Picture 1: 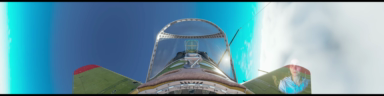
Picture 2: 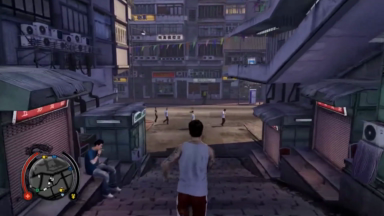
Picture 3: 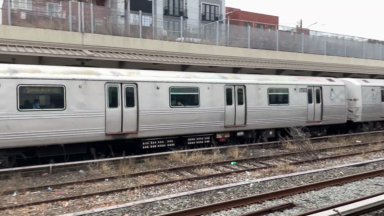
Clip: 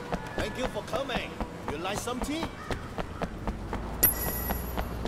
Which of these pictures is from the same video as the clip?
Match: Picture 2